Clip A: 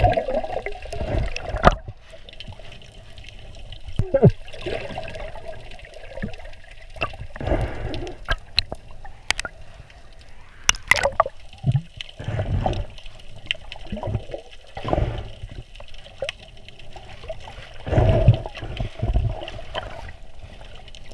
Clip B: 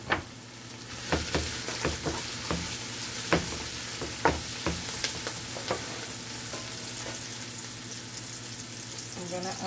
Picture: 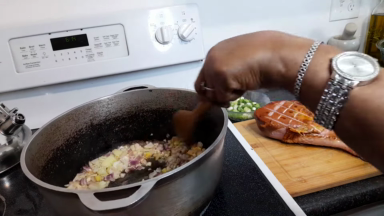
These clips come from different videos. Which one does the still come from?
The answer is B